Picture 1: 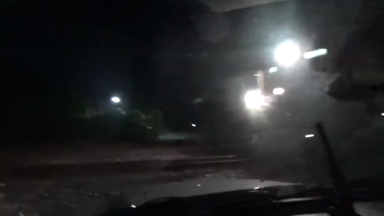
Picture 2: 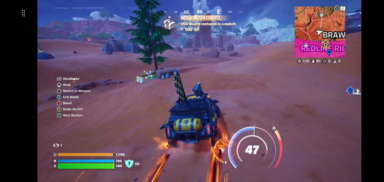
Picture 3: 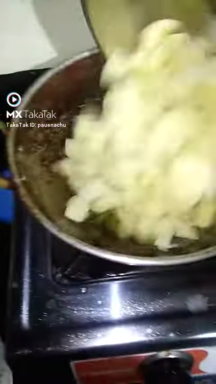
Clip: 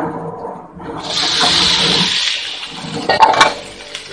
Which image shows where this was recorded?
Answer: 3